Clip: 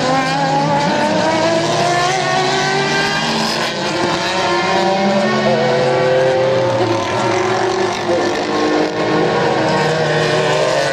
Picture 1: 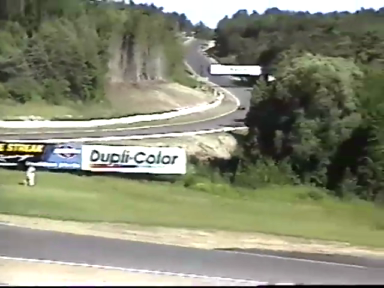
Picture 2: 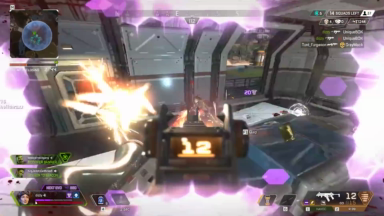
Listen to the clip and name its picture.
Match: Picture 1